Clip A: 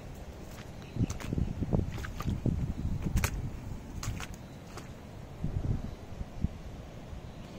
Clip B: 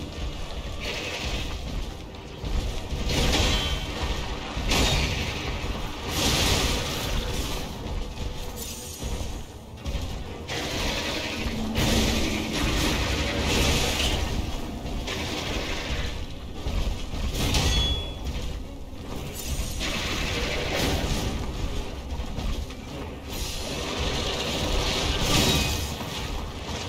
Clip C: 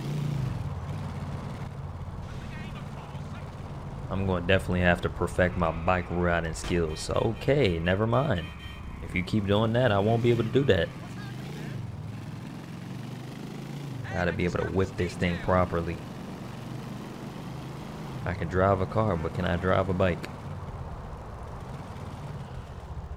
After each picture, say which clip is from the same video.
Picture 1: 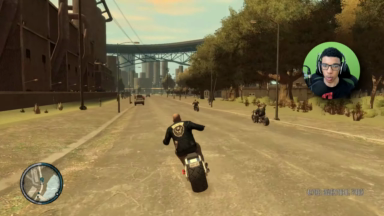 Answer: C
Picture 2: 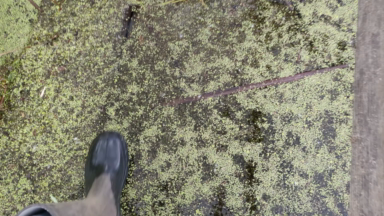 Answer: A